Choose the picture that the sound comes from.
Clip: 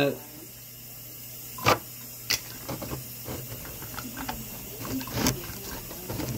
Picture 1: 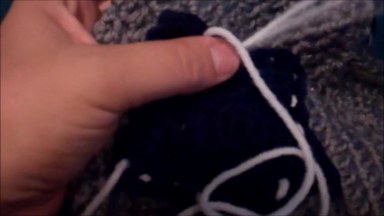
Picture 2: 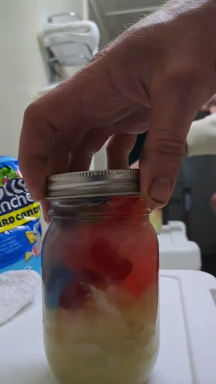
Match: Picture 2